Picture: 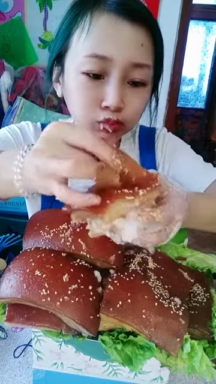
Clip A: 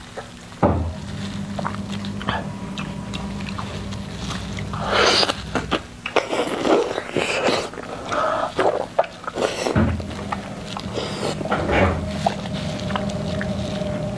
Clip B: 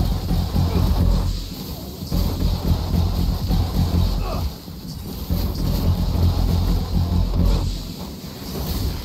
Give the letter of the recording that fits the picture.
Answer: A